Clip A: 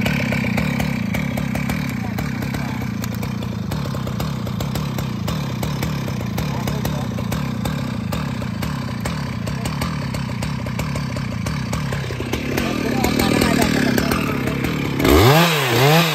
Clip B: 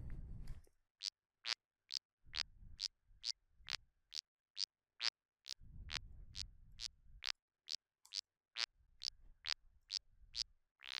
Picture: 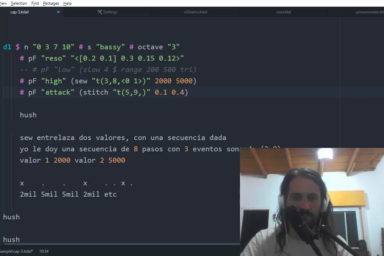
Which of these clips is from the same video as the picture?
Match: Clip B